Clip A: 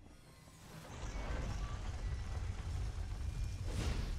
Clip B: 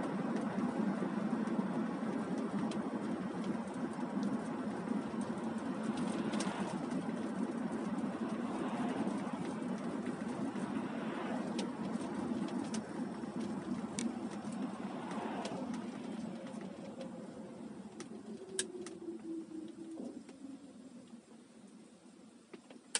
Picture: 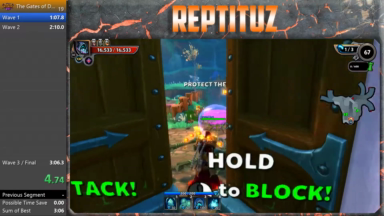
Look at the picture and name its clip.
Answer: A